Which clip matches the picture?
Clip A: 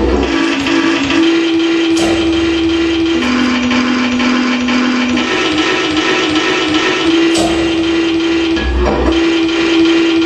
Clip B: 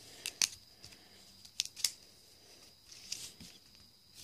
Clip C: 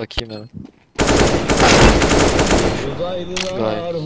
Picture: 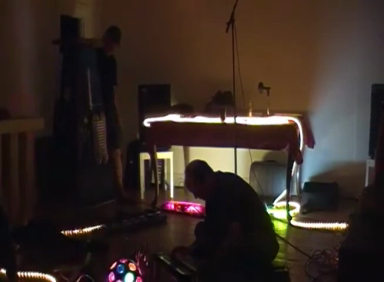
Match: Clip A